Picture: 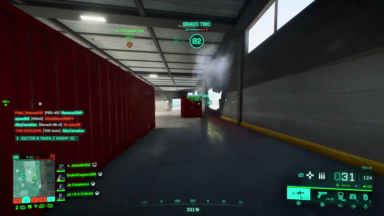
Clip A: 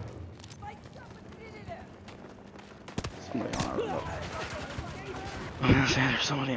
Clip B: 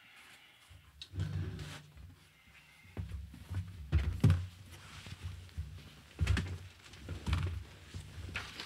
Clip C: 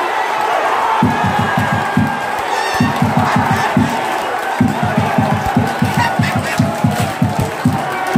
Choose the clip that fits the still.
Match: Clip A